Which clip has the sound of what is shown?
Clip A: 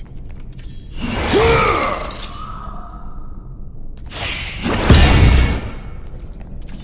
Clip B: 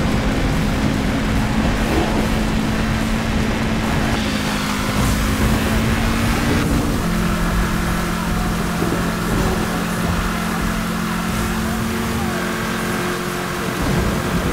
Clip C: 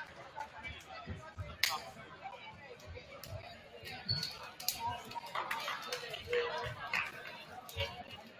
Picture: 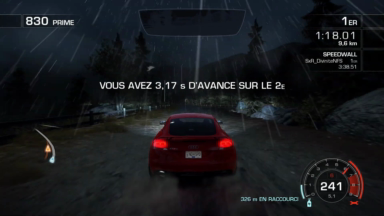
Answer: B